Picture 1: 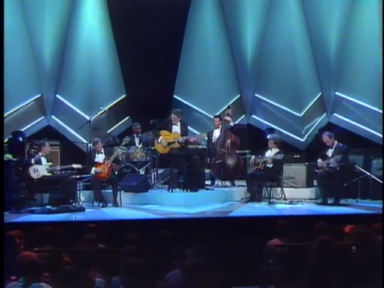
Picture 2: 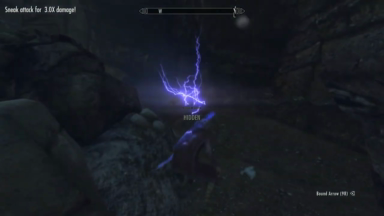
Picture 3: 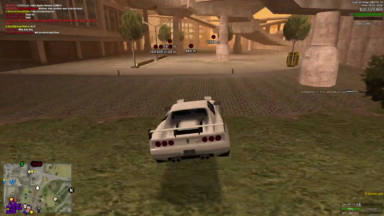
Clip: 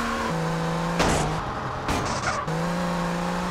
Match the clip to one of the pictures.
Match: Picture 3